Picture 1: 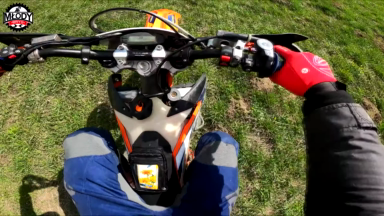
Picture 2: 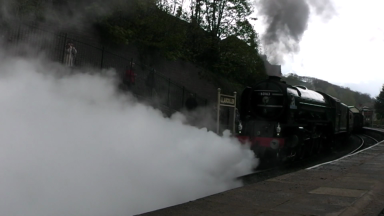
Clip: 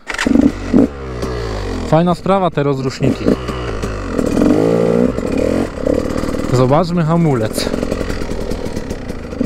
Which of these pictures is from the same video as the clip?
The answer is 1